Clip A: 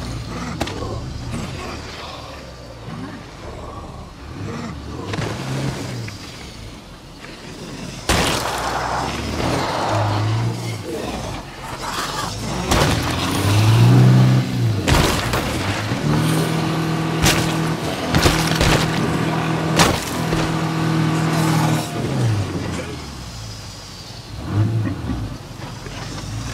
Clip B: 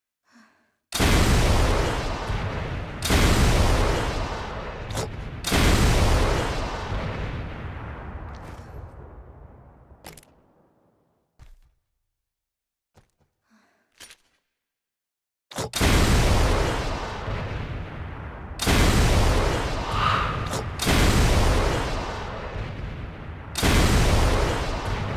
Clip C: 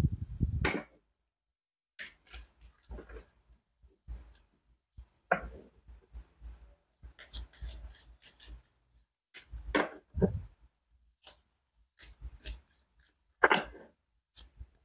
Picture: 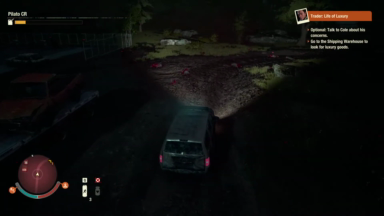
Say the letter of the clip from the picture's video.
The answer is A